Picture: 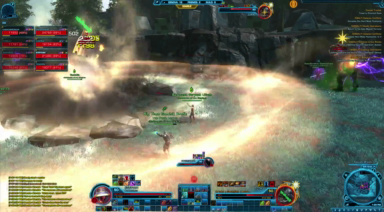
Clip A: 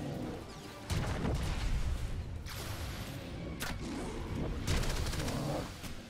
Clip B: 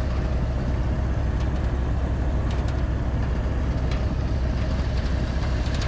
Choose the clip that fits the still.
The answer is A